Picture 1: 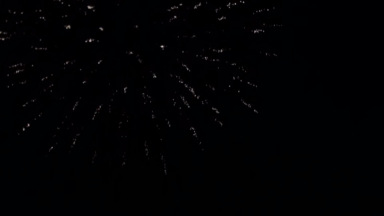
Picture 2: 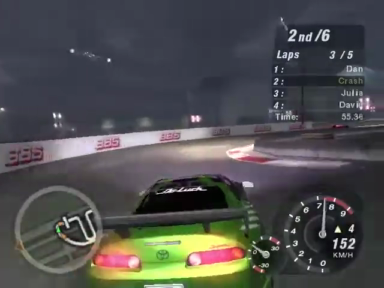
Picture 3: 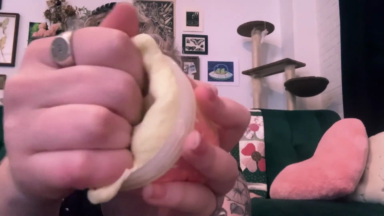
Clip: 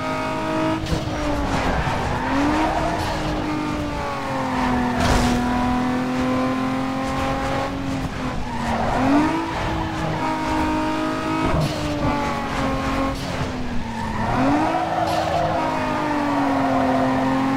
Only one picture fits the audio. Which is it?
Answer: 2